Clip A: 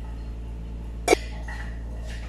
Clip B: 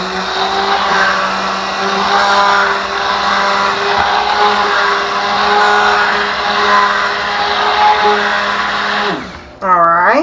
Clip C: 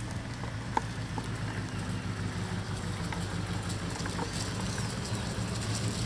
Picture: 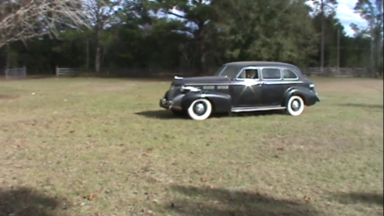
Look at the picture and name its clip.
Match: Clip C